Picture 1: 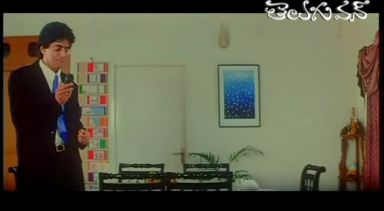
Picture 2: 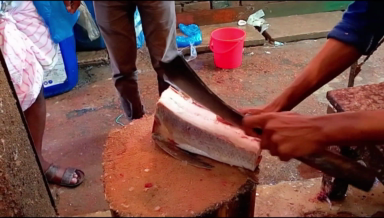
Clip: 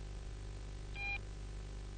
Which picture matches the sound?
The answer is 1